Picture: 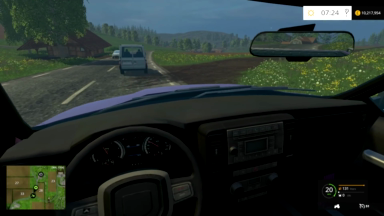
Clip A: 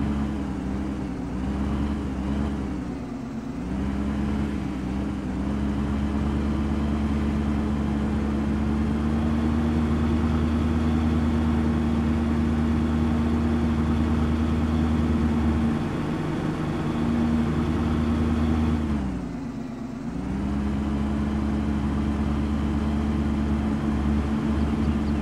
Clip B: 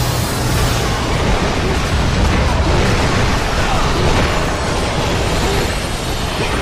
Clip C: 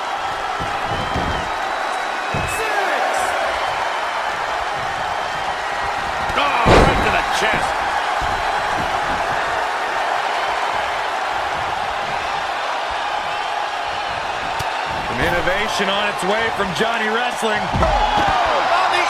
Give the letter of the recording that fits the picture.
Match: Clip A